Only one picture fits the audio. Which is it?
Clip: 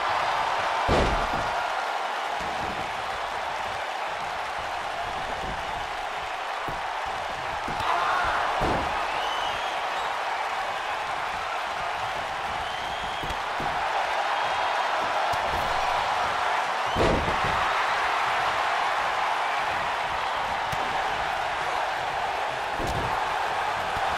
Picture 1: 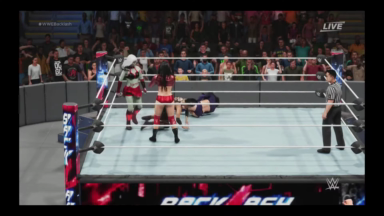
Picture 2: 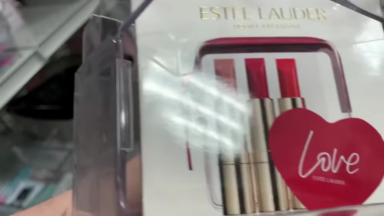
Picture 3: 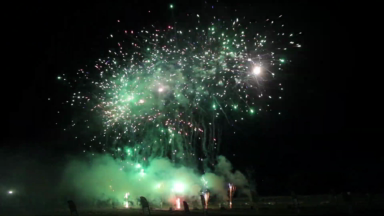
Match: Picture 1